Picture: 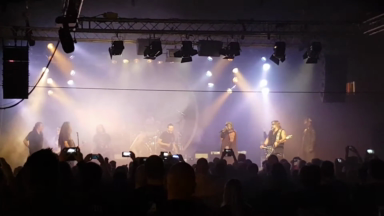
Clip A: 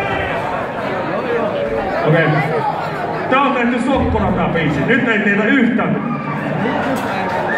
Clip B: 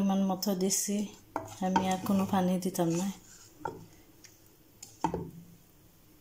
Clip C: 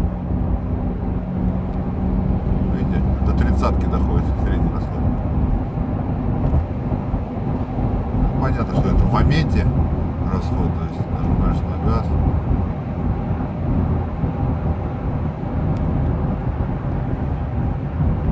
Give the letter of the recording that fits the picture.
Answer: A